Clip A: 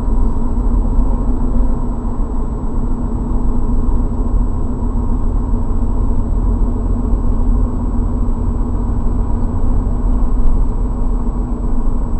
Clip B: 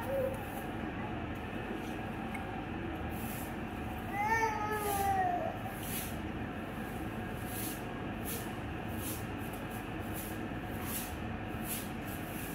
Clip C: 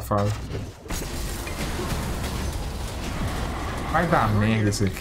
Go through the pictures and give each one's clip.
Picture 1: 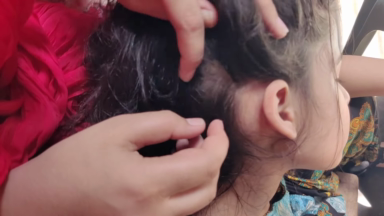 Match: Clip B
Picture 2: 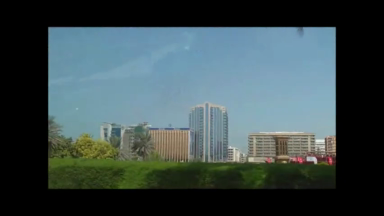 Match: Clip A